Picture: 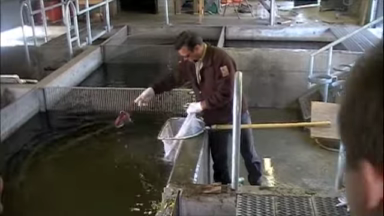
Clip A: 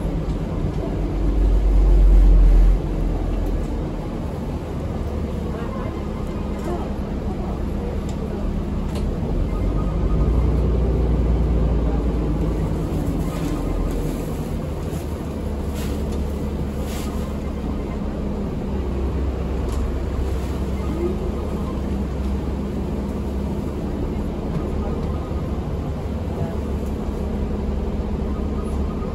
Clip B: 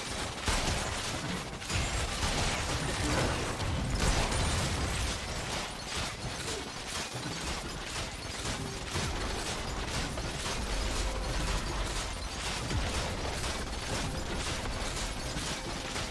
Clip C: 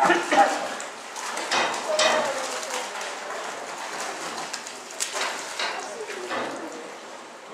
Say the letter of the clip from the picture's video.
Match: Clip C